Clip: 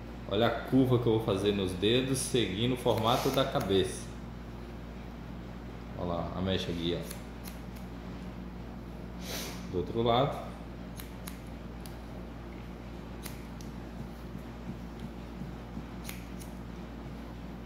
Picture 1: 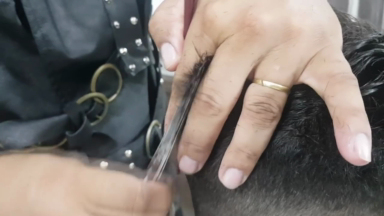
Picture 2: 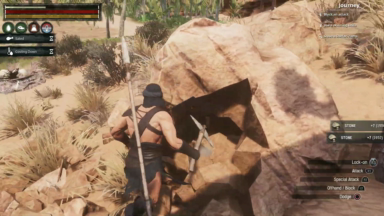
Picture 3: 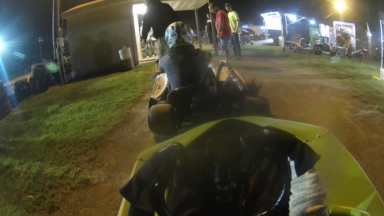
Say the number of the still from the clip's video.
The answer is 1